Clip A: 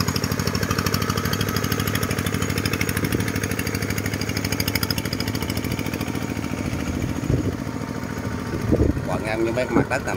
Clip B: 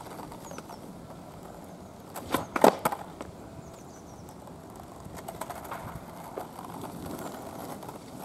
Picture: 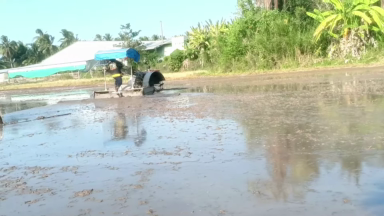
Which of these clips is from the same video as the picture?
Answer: A